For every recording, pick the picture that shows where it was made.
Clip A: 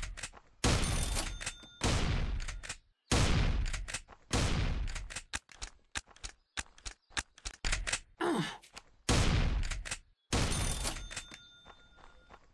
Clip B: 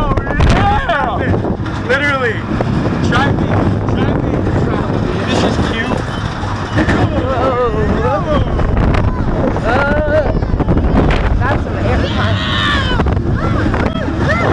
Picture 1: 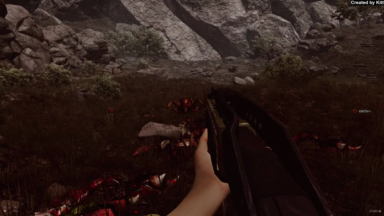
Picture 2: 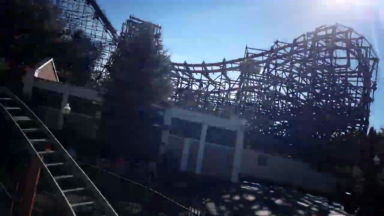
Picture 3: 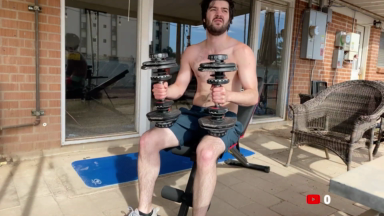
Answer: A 1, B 2